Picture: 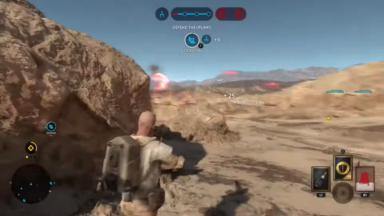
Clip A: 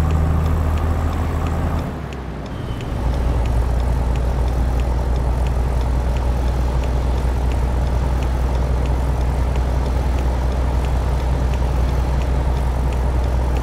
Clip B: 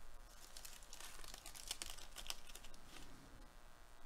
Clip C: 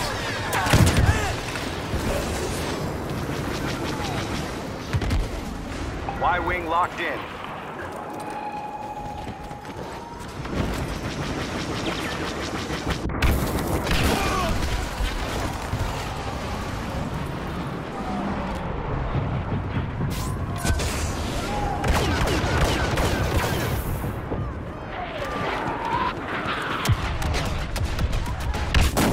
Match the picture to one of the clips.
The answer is C